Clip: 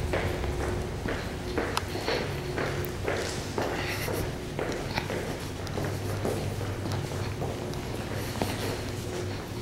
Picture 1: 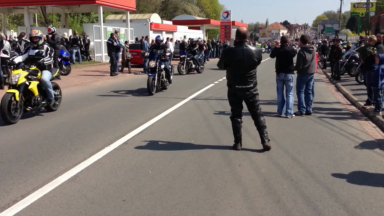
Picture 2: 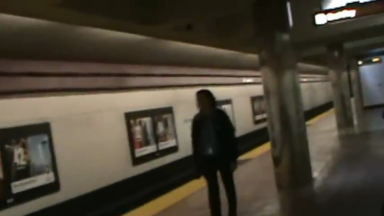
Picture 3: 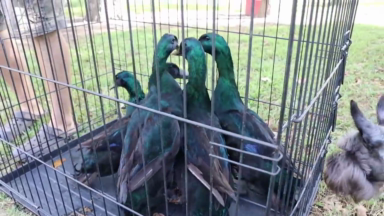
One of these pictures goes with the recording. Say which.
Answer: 2